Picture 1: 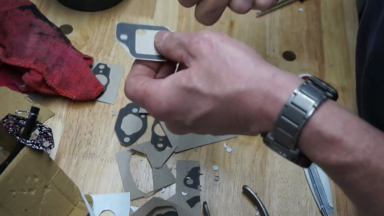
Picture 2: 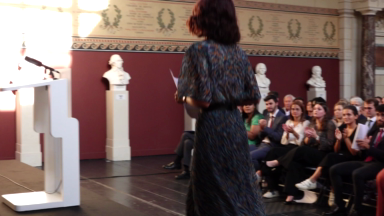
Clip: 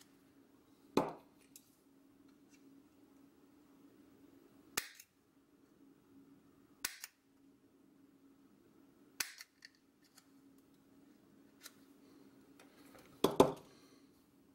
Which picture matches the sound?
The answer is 1